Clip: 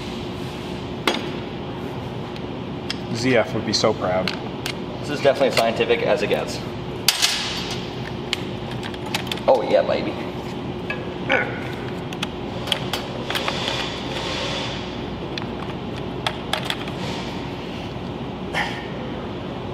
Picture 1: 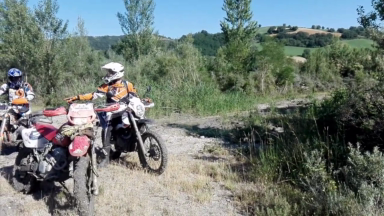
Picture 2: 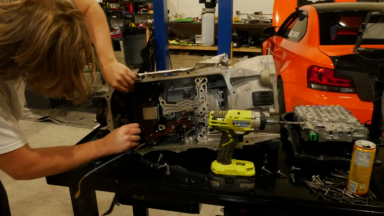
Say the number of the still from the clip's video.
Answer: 2